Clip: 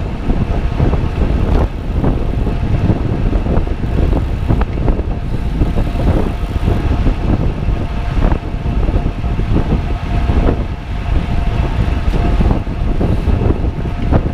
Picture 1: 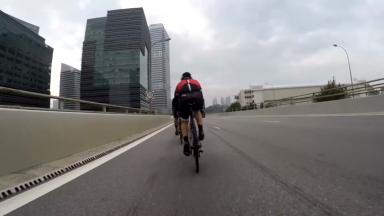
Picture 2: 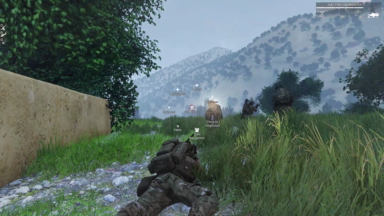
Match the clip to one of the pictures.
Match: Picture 1